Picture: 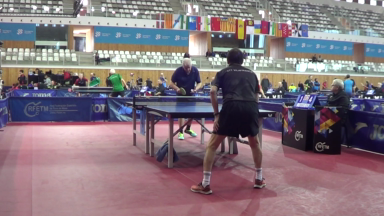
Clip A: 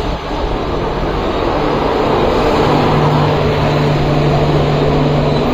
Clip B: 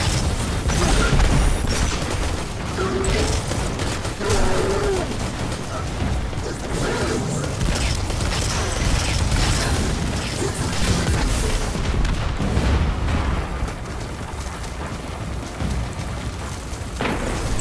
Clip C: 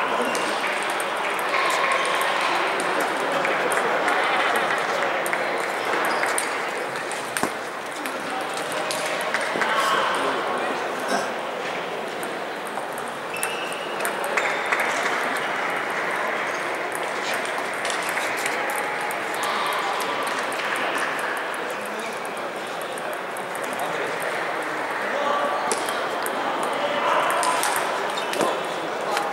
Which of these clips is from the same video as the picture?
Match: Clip C